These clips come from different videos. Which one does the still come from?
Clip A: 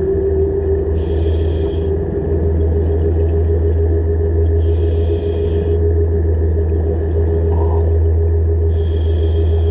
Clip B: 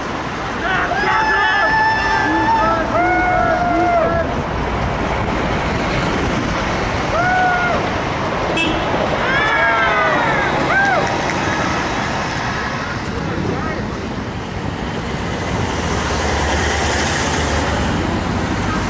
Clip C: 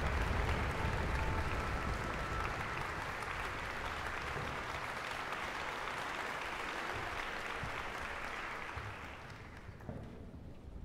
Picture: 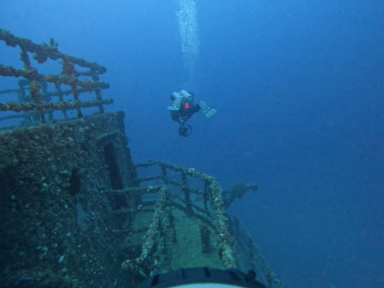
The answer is A